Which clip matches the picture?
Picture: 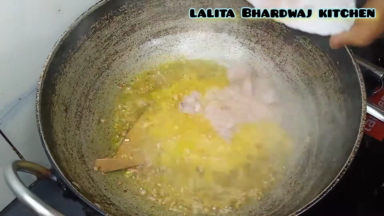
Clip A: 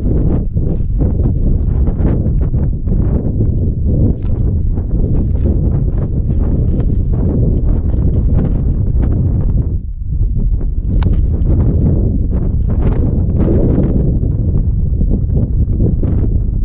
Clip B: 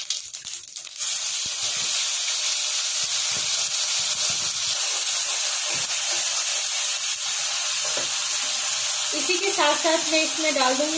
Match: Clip B